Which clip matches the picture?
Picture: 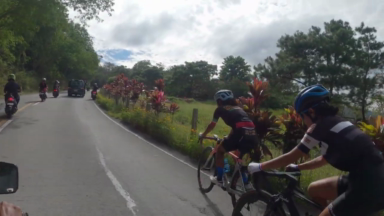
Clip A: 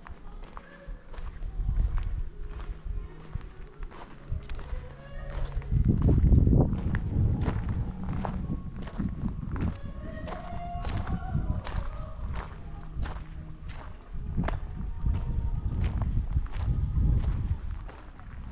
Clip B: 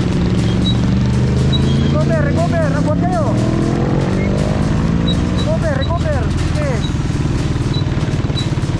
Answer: B